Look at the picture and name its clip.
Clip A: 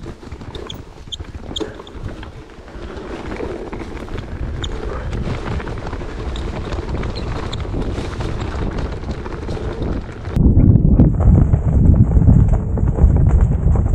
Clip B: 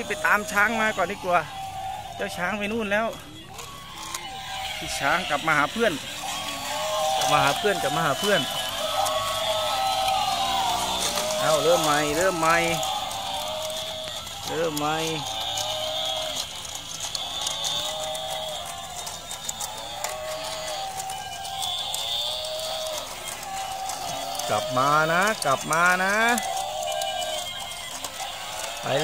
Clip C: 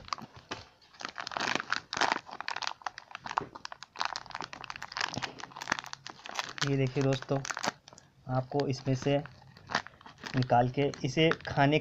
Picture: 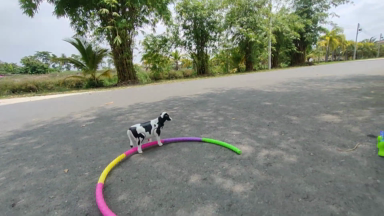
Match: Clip B